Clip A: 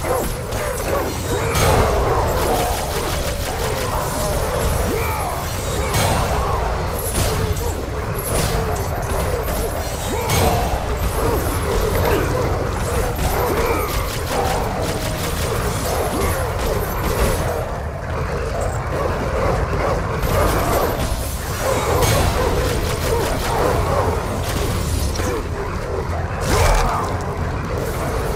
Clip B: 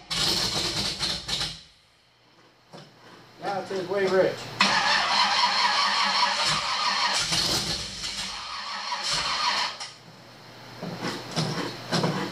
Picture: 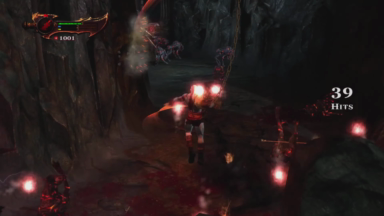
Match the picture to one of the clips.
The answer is A